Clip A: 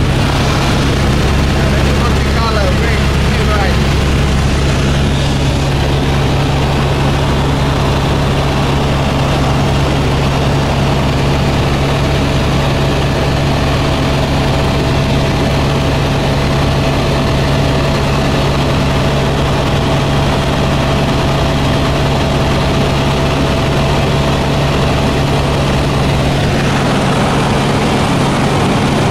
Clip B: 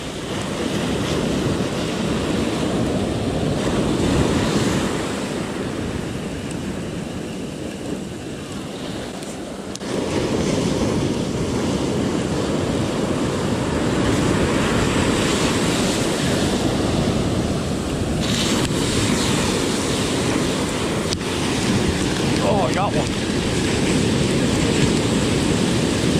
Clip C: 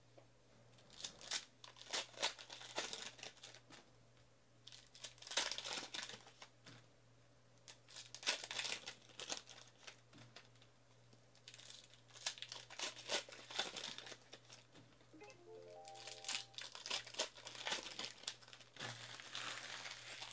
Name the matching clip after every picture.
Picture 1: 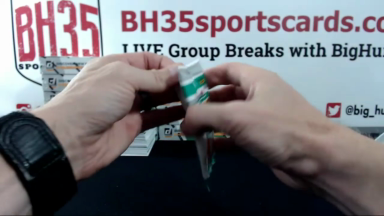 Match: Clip C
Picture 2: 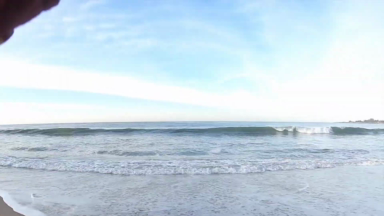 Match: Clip B